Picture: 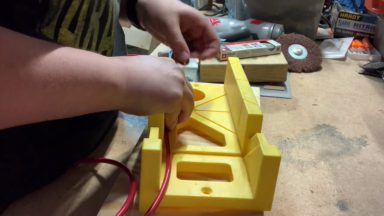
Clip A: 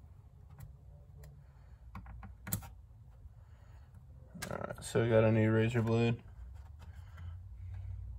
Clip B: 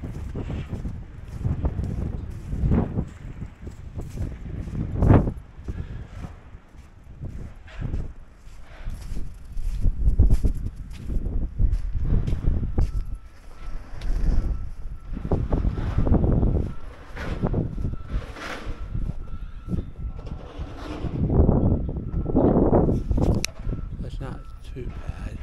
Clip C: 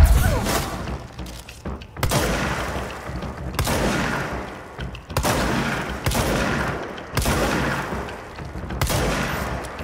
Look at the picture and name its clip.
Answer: A